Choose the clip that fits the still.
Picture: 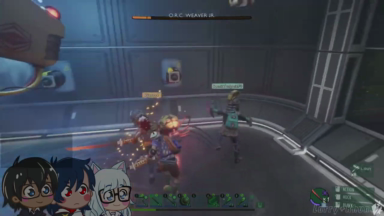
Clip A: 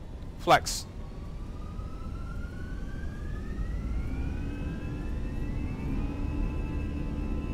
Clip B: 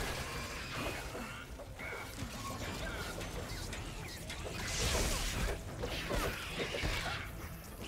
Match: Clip B